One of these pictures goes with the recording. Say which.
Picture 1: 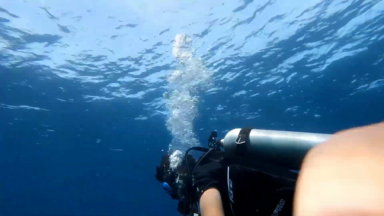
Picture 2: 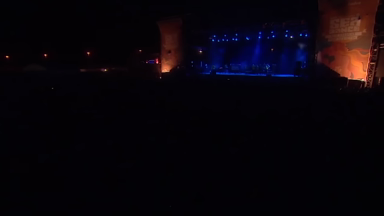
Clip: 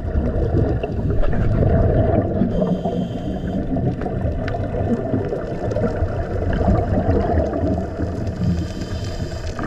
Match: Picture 1